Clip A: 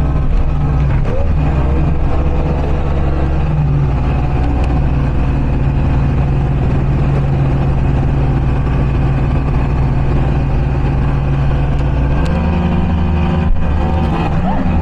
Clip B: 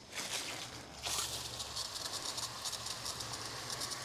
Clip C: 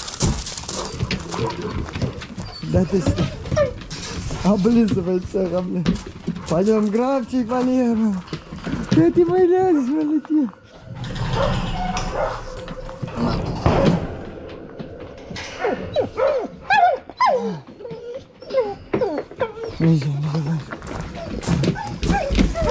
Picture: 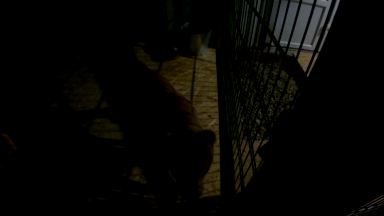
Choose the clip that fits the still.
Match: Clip C